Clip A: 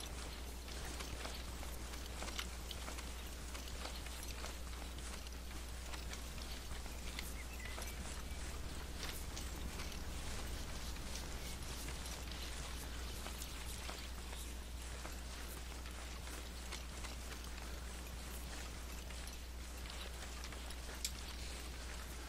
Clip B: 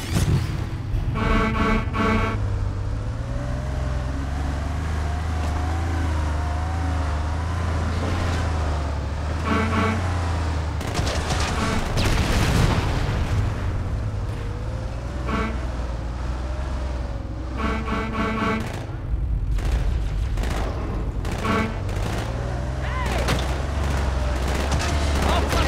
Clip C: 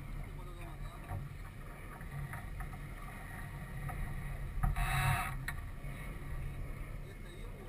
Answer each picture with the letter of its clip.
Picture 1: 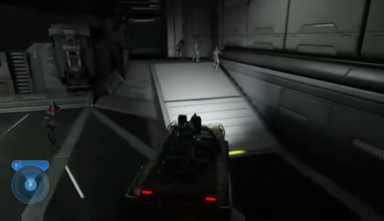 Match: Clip B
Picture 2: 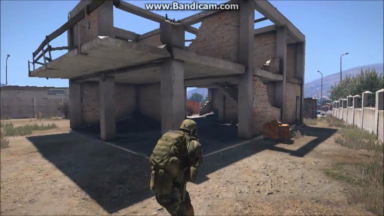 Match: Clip A